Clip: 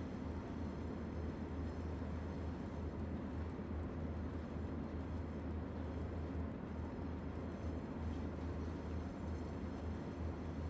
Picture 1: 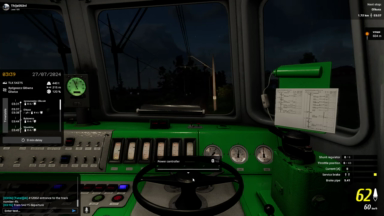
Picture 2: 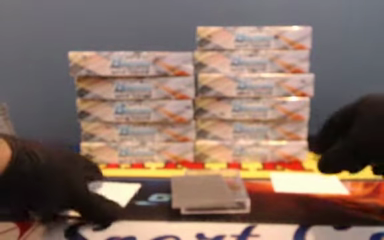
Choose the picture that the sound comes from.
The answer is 1